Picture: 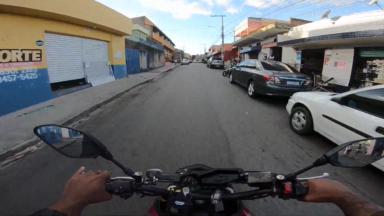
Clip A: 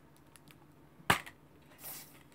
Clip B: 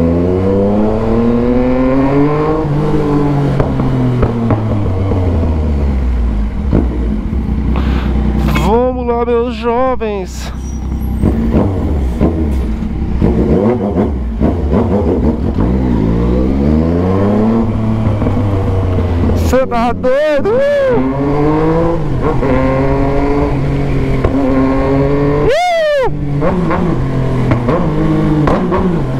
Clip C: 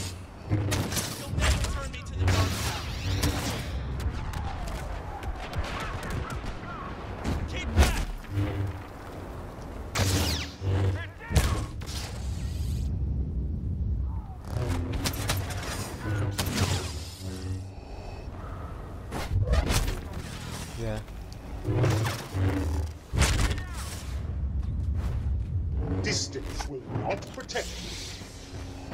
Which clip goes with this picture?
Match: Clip B